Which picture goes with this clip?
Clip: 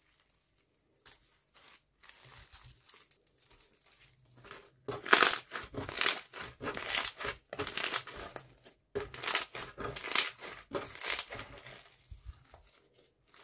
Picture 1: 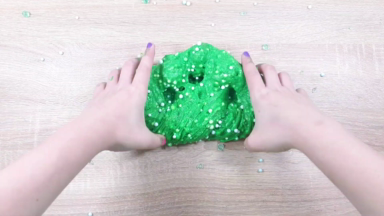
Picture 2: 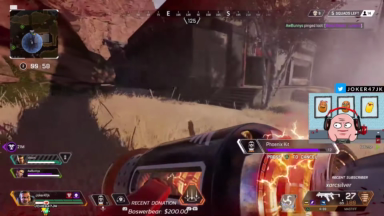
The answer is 1